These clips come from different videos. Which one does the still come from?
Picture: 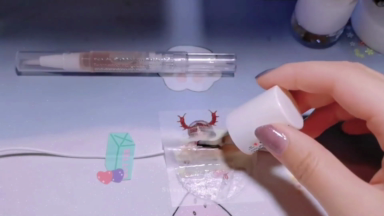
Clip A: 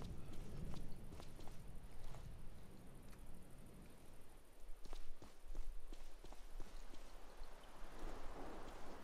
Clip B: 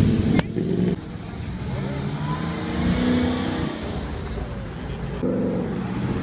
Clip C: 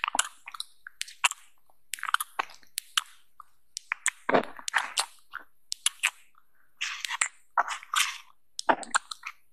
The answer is C